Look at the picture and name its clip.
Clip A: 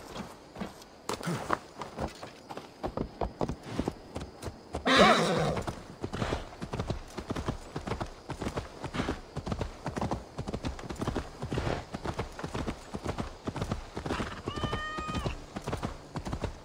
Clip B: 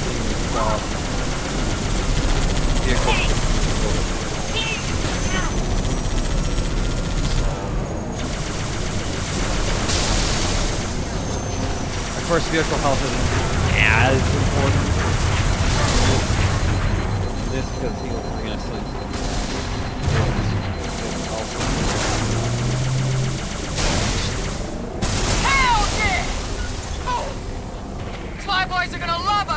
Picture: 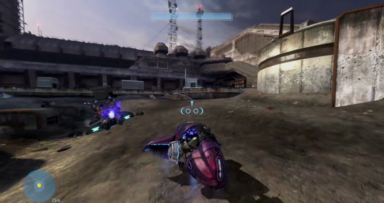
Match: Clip B